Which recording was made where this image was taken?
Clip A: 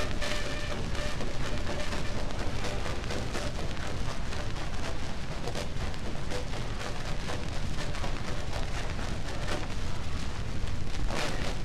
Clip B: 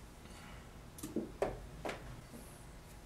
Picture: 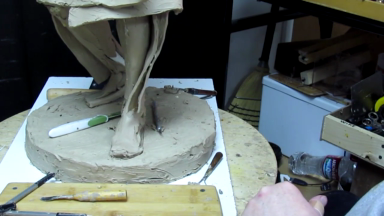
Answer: B